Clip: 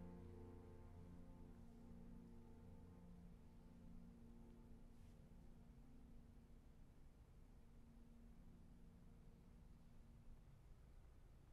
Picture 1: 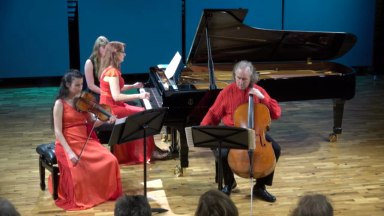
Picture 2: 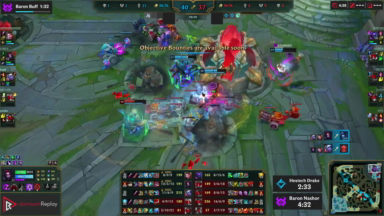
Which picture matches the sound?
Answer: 1